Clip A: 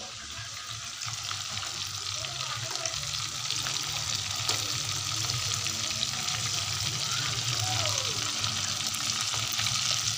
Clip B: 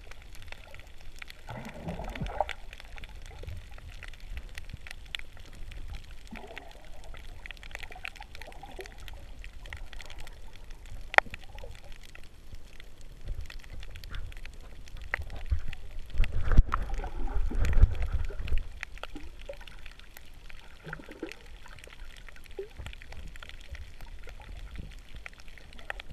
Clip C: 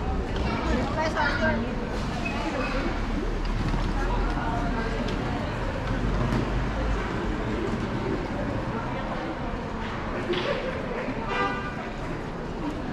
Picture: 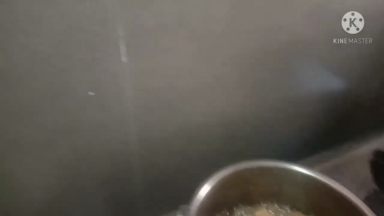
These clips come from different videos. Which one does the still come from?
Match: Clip A